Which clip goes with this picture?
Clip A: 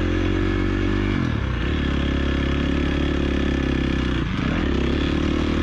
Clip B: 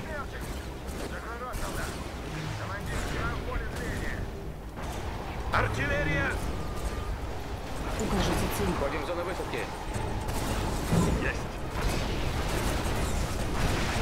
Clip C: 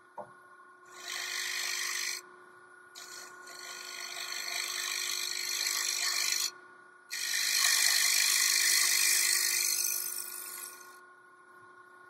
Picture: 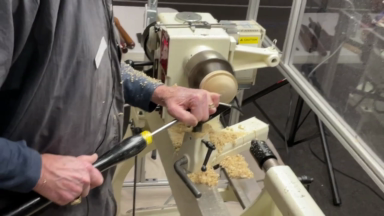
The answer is C